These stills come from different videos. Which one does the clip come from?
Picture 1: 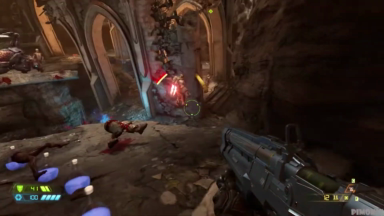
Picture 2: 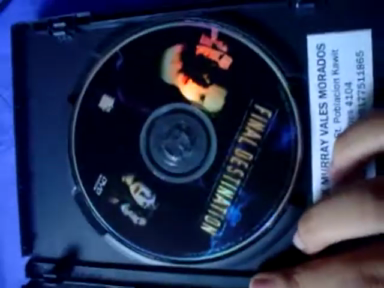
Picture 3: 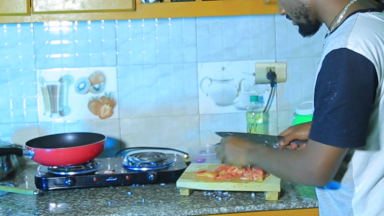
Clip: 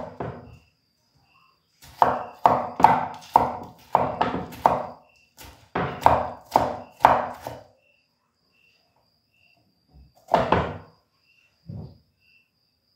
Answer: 3